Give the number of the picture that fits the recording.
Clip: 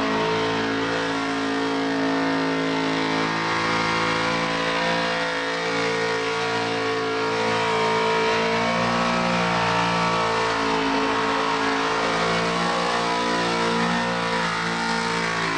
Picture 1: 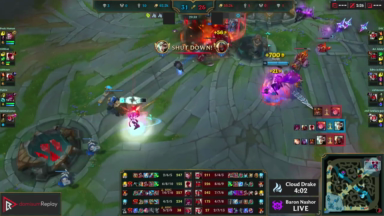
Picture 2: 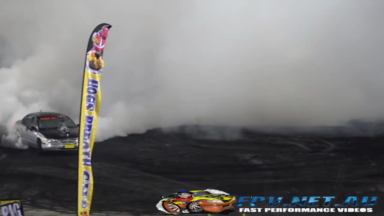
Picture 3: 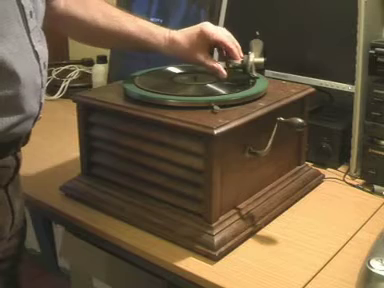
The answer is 2